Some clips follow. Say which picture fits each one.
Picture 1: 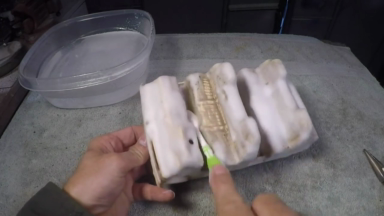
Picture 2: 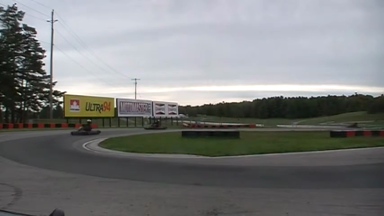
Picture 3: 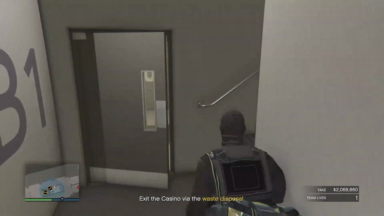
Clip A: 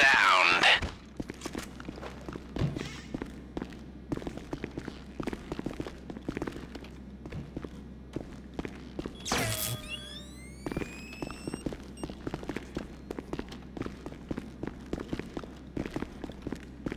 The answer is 3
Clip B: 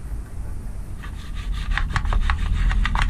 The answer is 1